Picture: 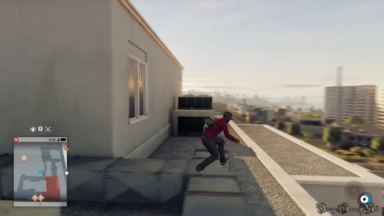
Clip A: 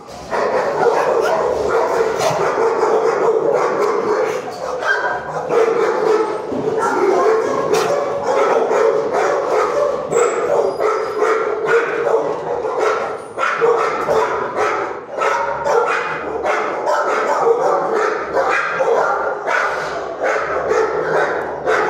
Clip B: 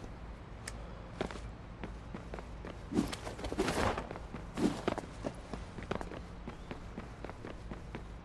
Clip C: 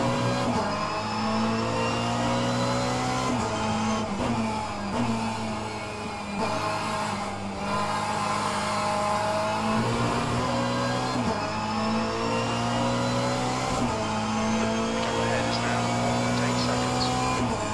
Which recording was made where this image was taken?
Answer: B